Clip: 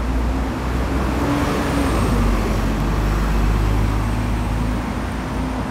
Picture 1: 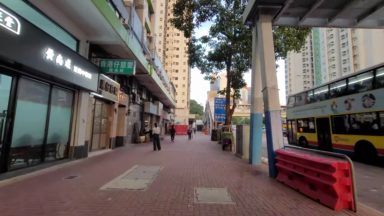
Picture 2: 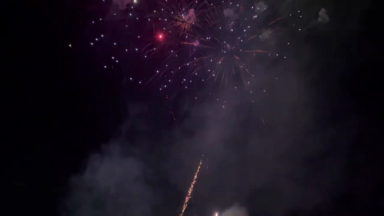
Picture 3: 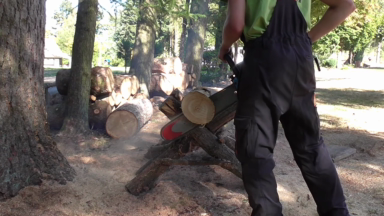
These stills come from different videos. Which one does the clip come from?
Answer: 1